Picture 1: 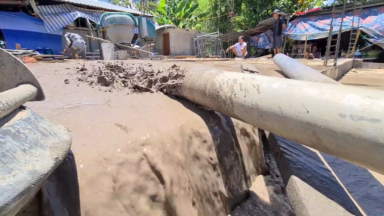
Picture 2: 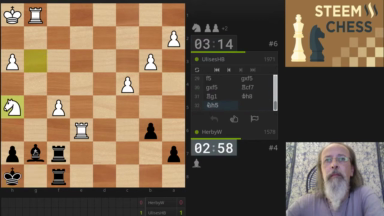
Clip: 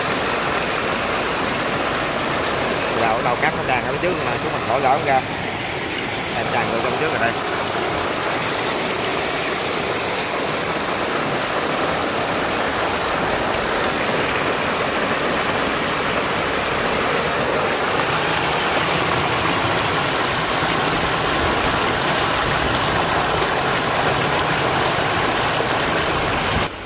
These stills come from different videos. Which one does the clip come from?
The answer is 1